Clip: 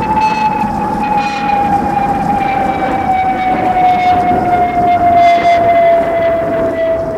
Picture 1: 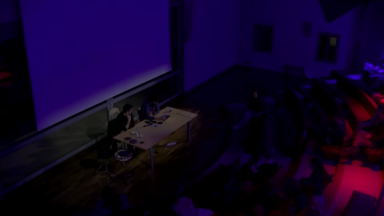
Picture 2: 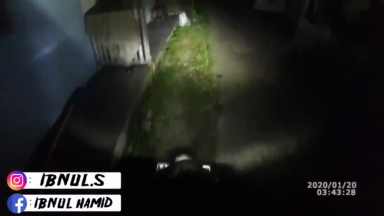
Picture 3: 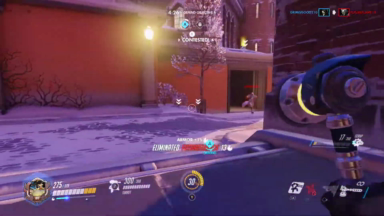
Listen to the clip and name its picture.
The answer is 1